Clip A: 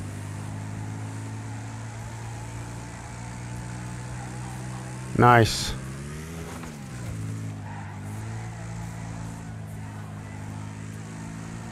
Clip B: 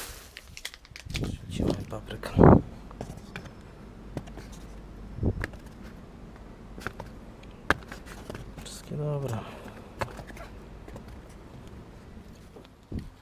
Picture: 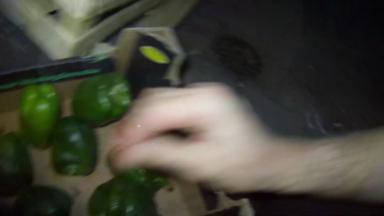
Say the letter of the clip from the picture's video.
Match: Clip B